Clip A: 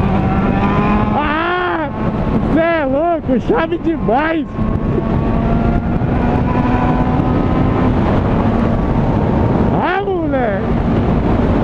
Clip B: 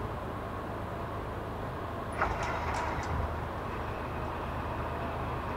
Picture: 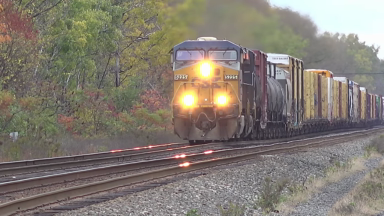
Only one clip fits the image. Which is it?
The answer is B